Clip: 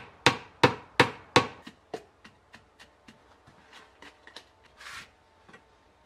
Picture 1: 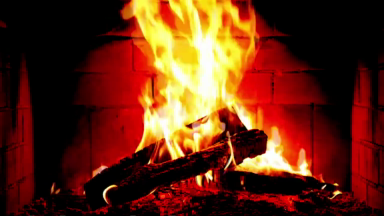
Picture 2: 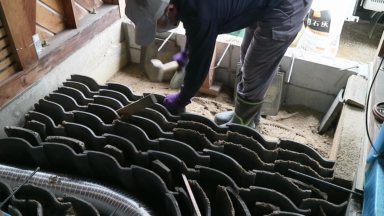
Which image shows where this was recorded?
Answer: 2